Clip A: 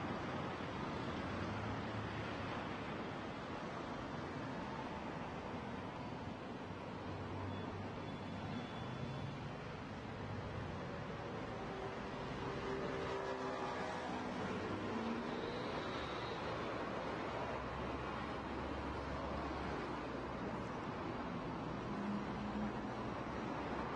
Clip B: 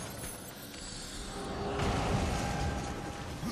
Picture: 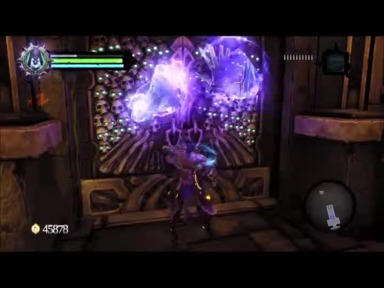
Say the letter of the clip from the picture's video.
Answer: B